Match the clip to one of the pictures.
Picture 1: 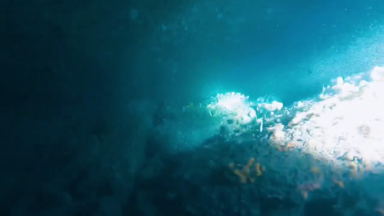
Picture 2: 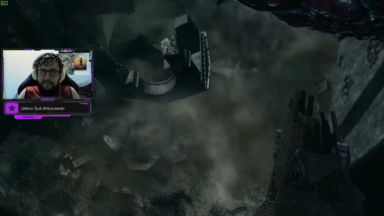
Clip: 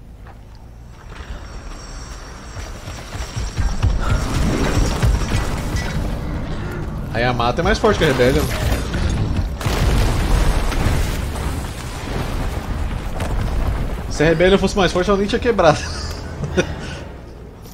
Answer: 2